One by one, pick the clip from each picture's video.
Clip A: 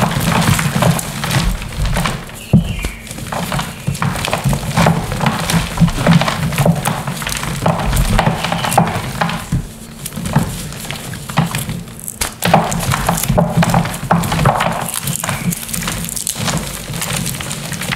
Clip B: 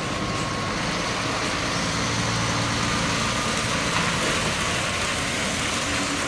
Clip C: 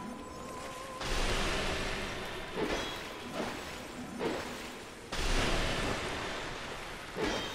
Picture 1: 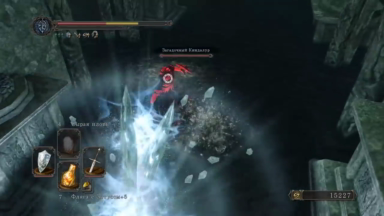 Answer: C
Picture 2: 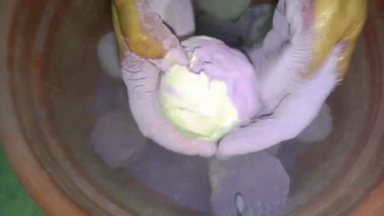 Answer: A